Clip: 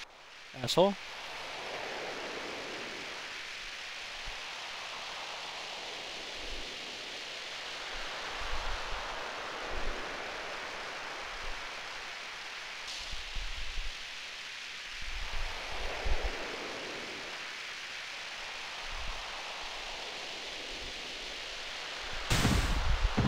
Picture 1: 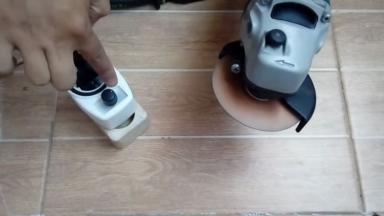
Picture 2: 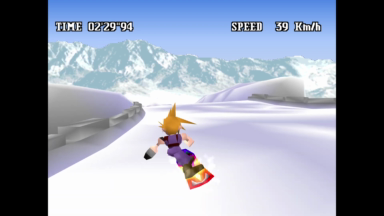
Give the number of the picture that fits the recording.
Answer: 2